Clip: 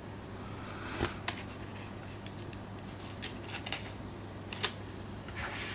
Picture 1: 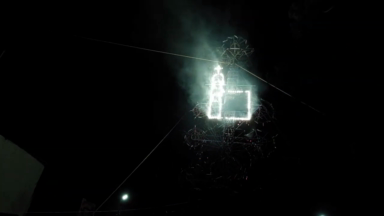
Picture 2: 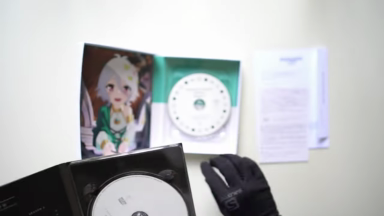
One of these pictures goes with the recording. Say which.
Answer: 2